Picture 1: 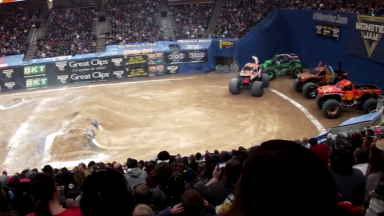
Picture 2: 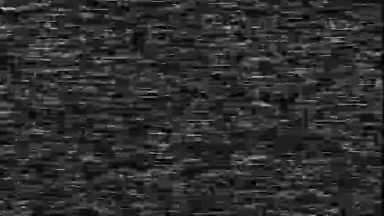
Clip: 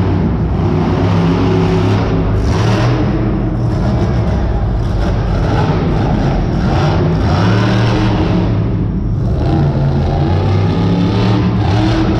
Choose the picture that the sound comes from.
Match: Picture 1